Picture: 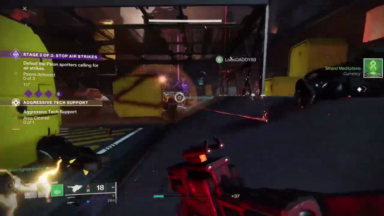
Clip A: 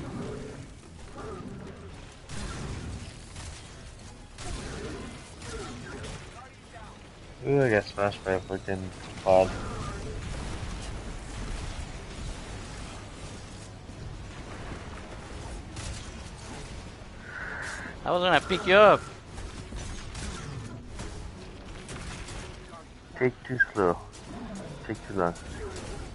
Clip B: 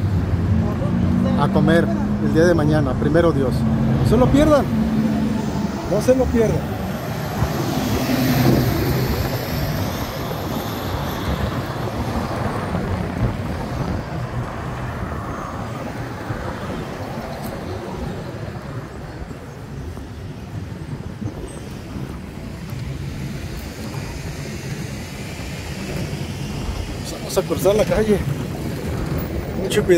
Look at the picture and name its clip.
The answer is A